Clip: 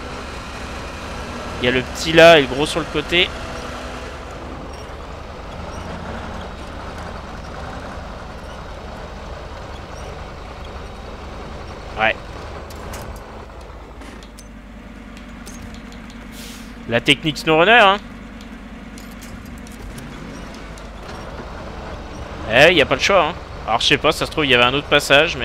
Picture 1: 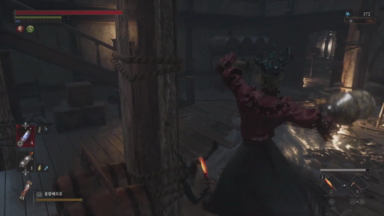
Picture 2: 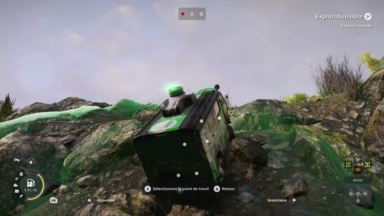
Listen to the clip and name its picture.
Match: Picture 2